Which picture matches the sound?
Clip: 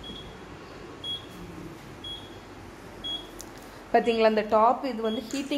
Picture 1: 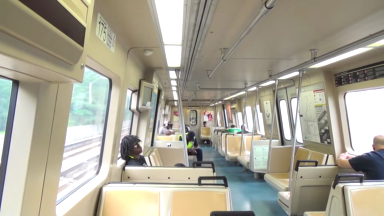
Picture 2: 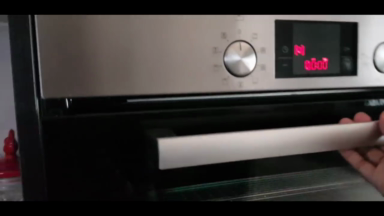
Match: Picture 2